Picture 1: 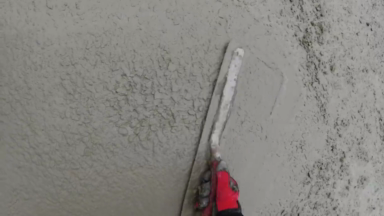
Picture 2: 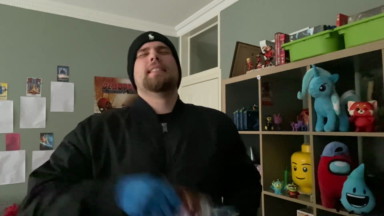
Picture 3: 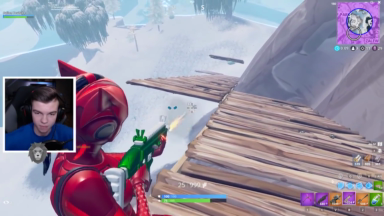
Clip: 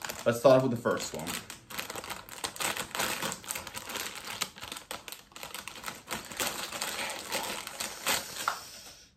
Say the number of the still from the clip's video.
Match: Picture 2